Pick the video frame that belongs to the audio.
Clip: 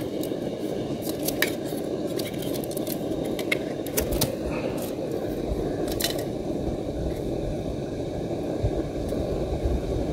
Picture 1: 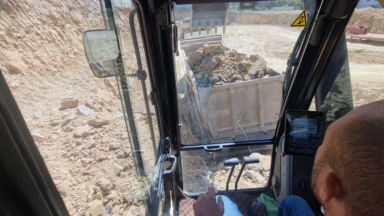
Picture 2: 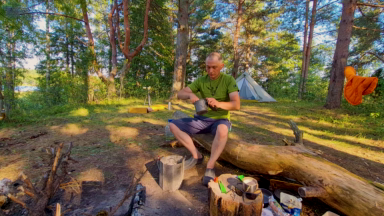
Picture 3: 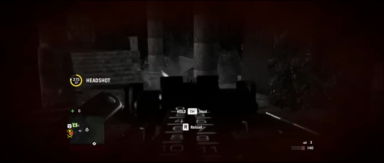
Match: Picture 2